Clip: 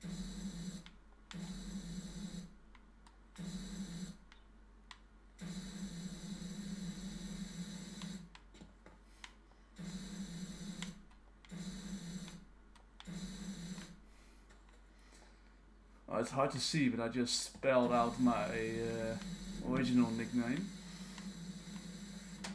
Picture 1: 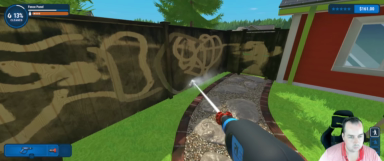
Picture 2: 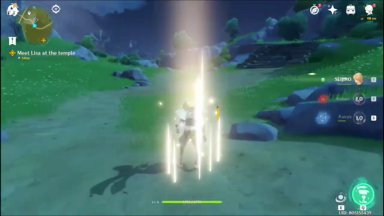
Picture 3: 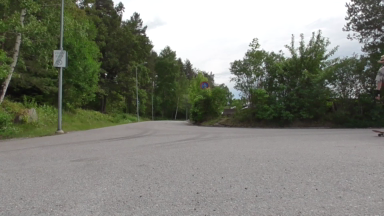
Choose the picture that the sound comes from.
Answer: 1